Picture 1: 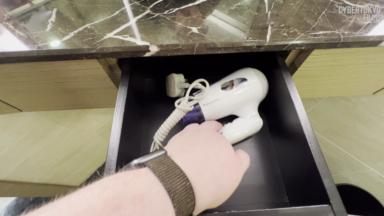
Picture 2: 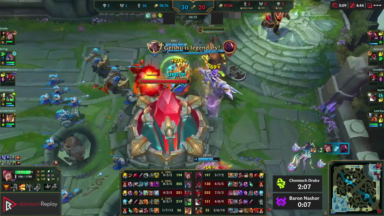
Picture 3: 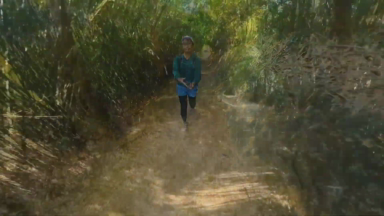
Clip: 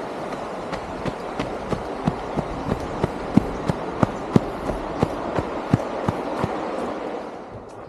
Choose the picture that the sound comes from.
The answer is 3